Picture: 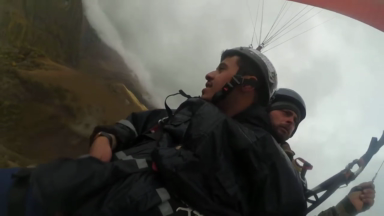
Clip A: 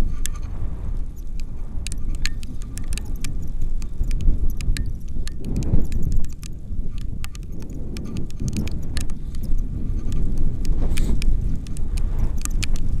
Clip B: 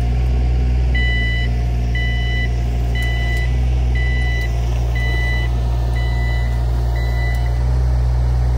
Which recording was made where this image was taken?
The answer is A